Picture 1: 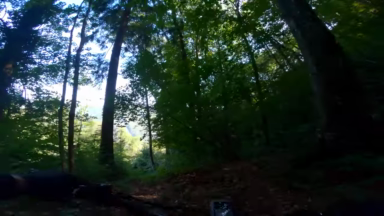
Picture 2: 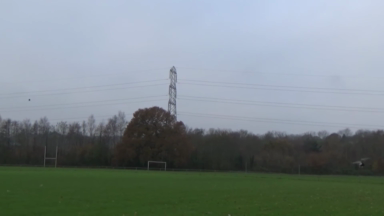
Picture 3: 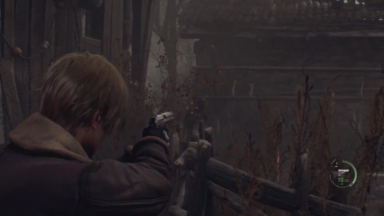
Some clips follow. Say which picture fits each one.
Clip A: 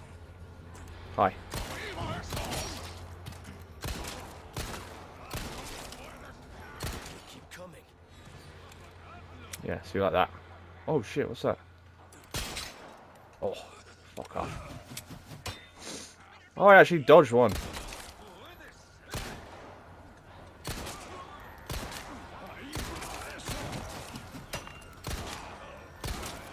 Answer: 3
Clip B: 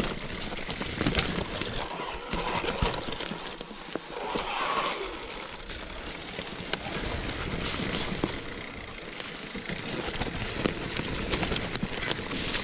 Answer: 1